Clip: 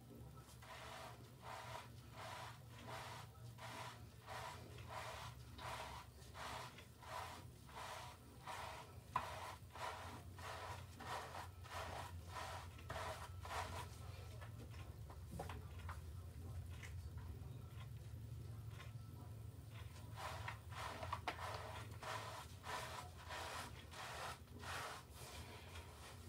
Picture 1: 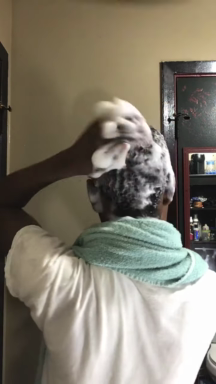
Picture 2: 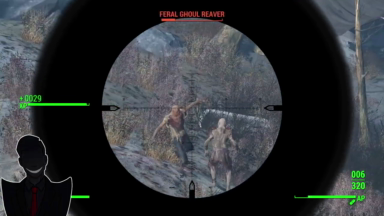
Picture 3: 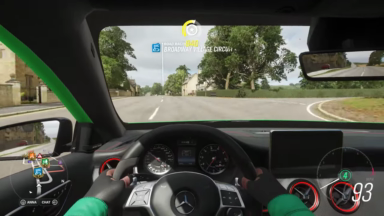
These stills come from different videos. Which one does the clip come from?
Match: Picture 1